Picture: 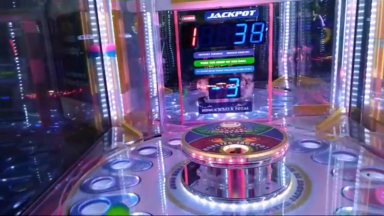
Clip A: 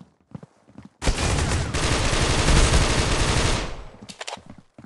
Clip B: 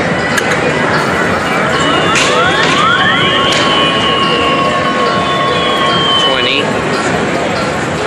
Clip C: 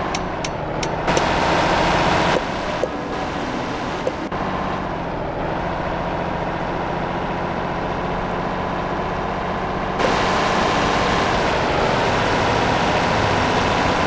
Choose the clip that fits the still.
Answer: B